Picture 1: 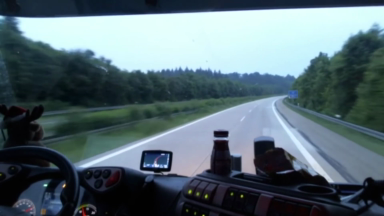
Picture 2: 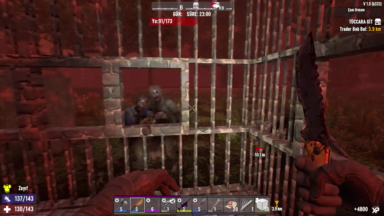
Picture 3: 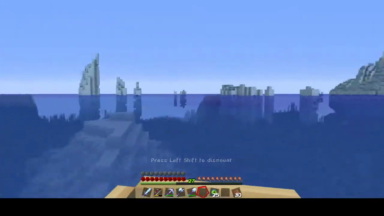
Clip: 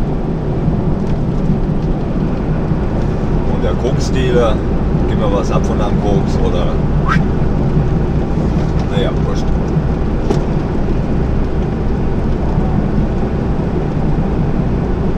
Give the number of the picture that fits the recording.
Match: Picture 1